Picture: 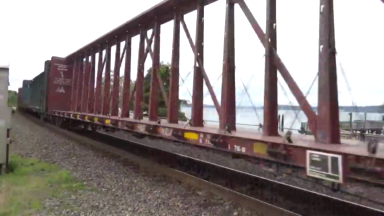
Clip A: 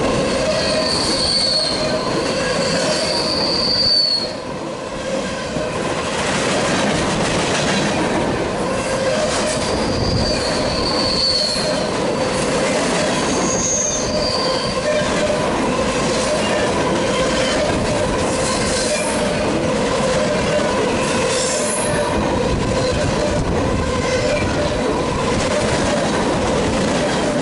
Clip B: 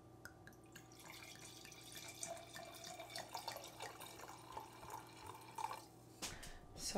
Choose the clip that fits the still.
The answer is A